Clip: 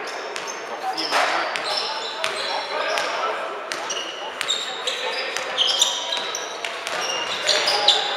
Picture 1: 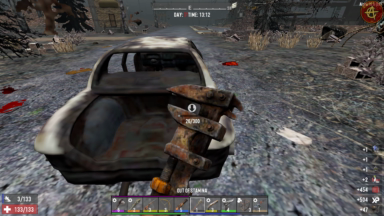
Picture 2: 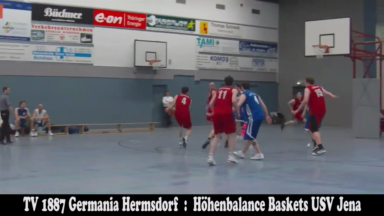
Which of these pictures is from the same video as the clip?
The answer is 2